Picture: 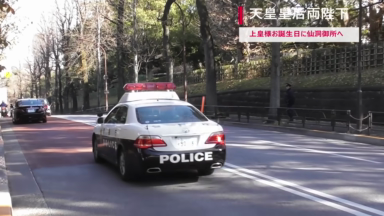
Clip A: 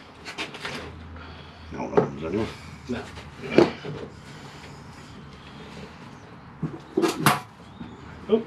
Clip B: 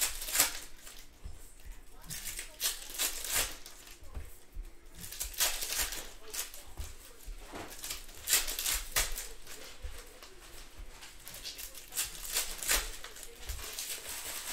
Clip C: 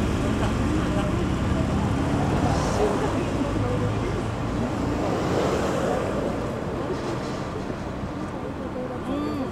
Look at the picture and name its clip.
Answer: C